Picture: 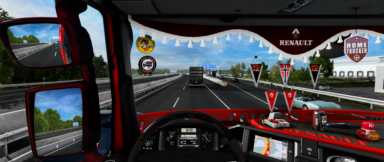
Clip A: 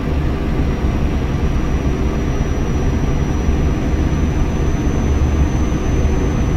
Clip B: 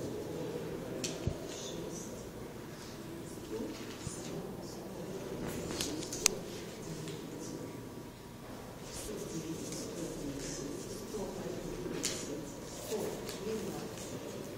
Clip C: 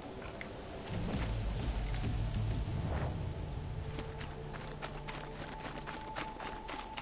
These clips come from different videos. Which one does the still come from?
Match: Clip A